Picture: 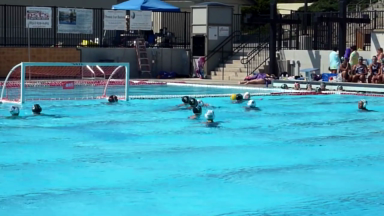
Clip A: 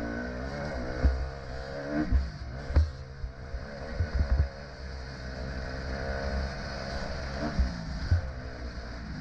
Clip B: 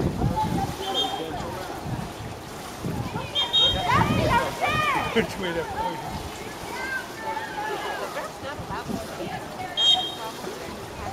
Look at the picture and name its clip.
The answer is B